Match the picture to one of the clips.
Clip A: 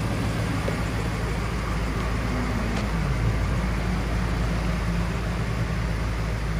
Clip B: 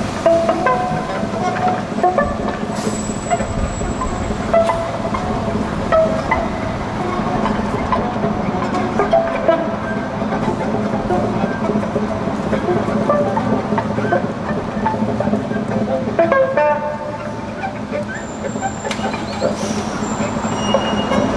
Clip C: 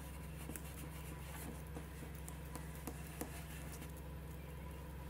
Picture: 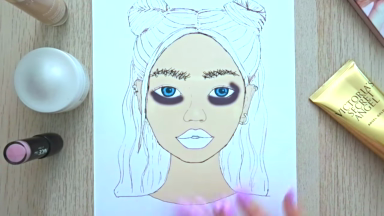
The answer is C